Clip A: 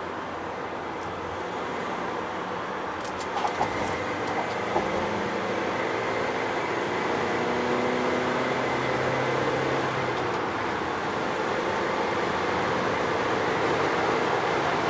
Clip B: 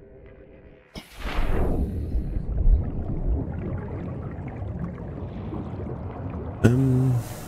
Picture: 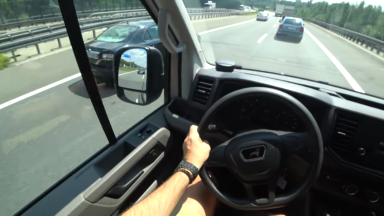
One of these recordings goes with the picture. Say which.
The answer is A